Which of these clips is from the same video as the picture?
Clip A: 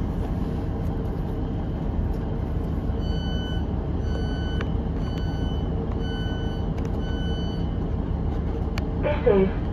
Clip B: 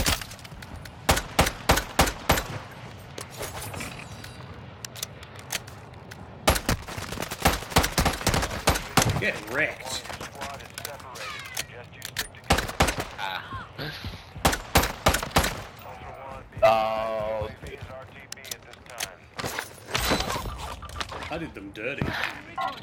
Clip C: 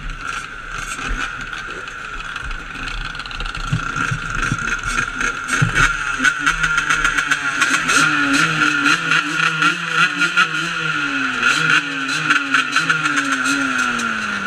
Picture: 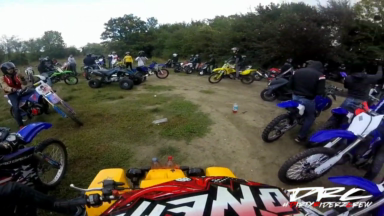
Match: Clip C